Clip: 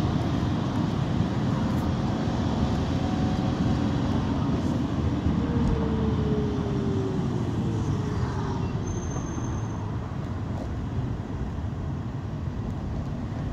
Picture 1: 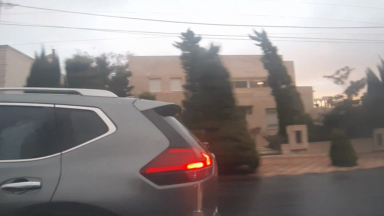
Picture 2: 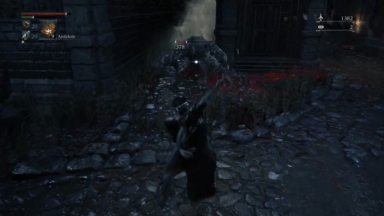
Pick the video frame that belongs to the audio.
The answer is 1